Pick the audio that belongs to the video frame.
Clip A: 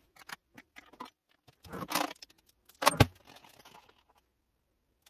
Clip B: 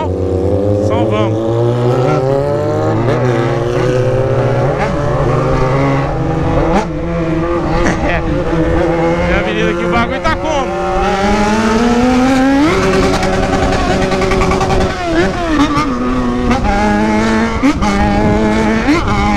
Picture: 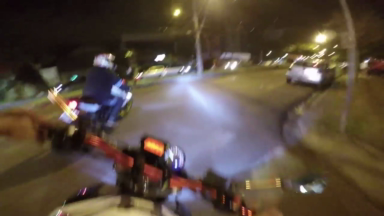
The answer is B